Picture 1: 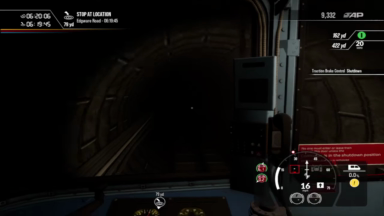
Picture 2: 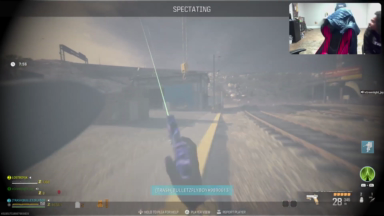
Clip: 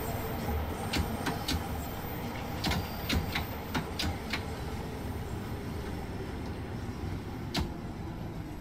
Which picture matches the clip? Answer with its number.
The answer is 1